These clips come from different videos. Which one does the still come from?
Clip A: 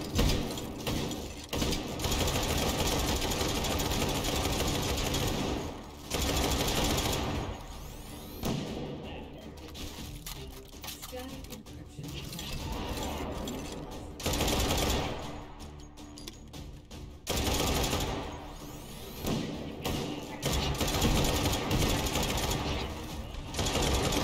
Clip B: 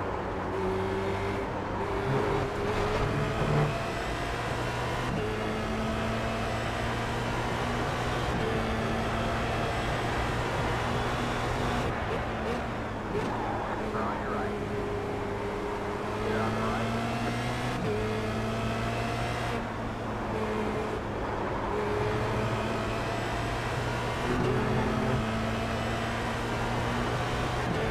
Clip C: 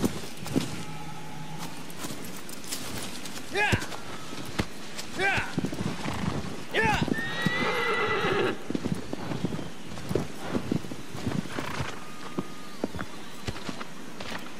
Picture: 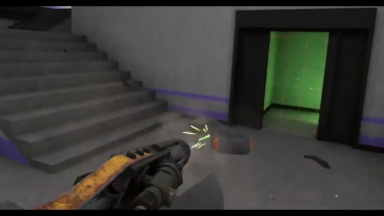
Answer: A